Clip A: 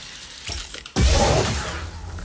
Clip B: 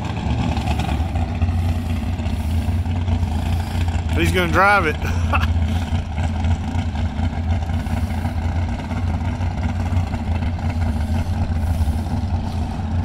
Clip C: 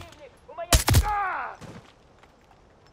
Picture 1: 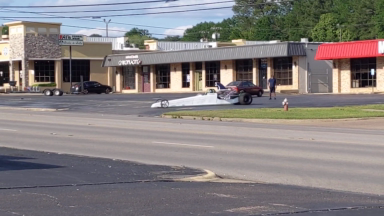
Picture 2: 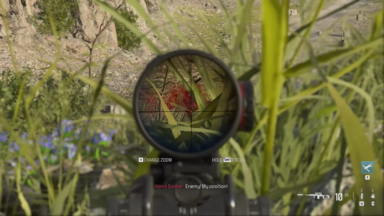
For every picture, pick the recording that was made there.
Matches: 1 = B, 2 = C